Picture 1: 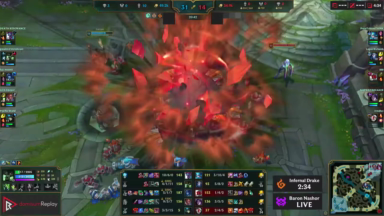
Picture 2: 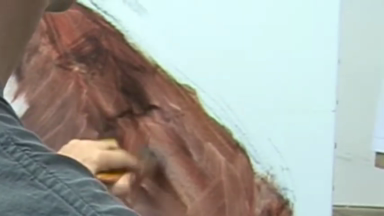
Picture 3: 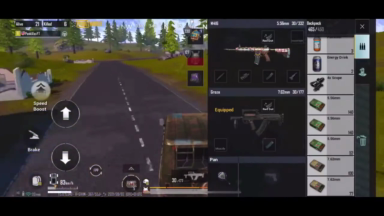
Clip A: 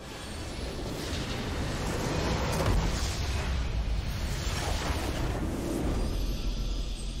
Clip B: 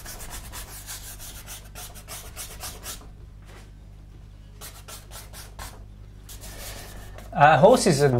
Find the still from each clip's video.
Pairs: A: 1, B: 2